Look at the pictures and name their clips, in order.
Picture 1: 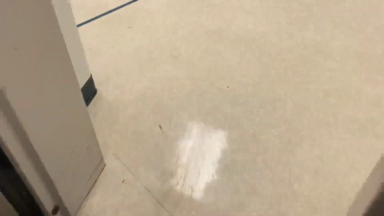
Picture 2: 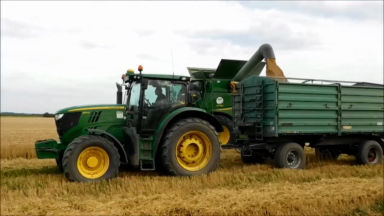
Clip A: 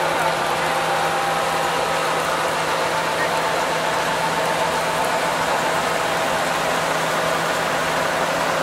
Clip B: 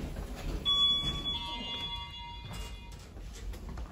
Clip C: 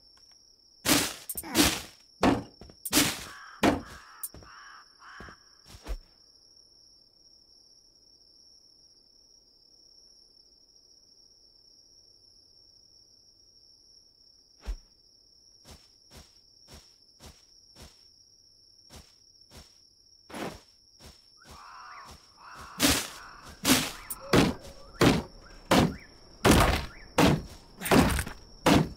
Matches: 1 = B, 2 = A